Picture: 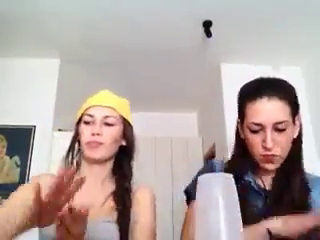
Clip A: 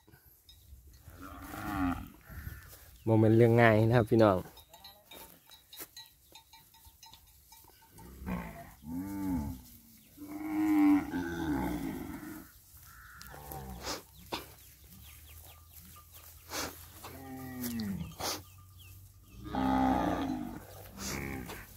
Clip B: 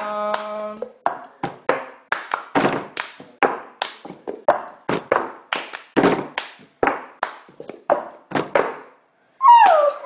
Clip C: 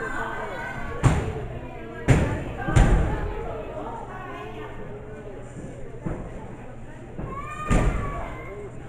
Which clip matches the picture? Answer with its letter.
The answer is B